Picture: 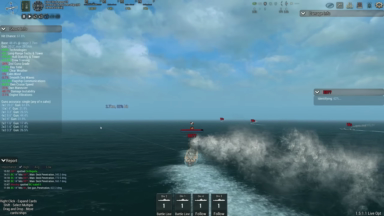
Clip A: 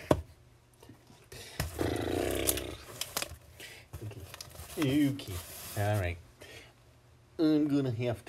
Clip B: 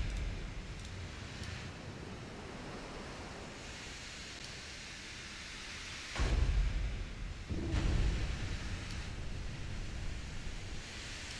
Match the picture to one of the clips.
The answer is B